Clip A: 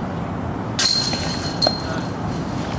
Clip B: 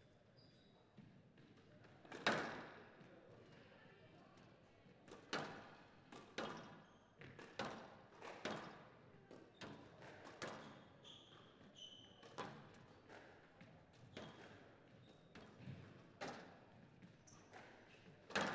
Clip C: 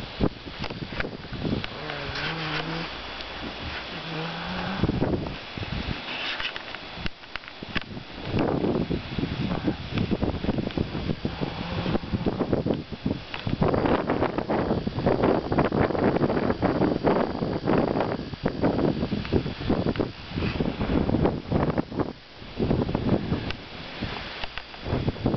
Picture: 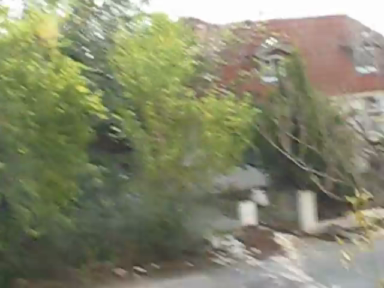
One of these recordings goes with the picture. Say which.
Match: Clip C